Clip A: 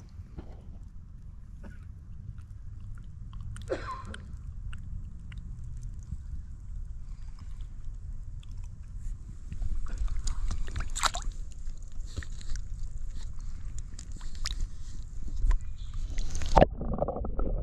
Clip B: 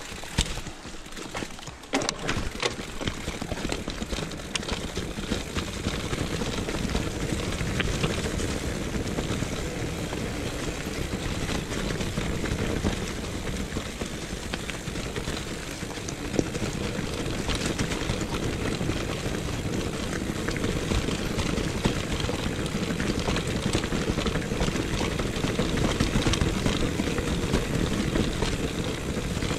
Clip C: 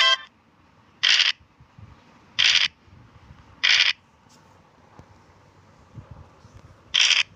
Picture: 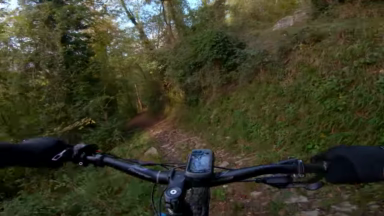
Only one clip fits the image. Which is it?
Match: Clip B